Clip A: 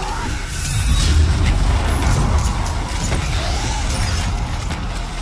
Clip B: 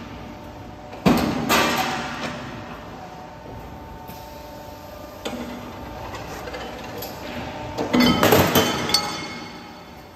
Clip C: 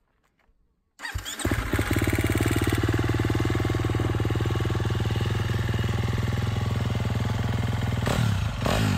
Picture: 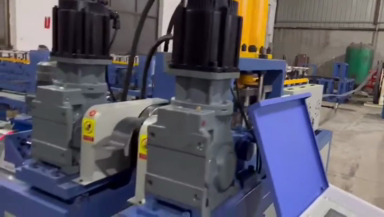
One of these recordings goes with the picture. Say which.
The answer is B